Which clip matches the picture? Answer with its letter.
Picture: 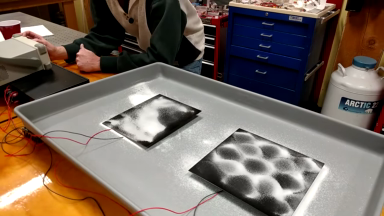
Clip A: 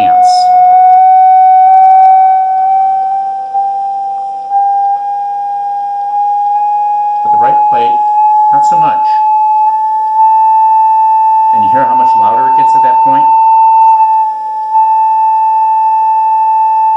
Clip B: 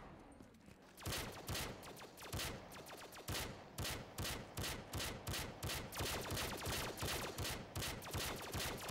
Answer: A